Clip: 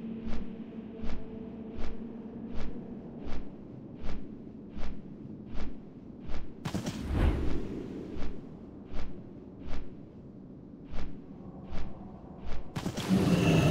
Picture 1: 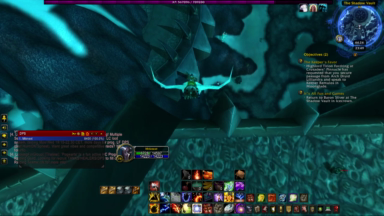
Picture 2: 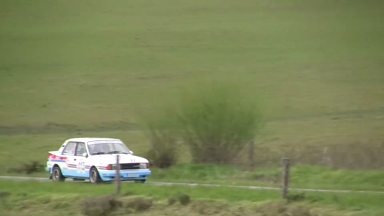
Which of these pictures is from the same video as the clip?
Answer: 1